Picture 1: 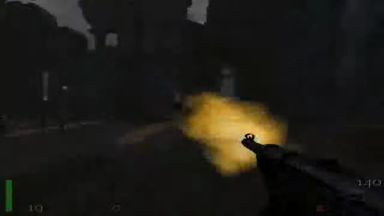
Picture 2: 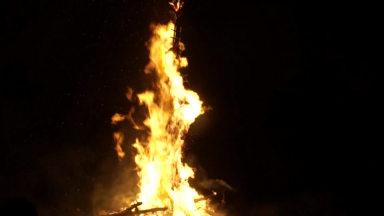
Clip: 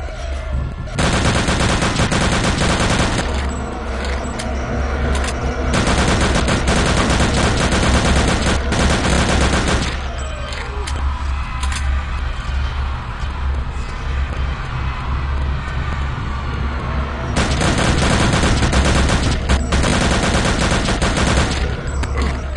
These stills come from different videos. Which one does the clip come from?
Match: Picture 1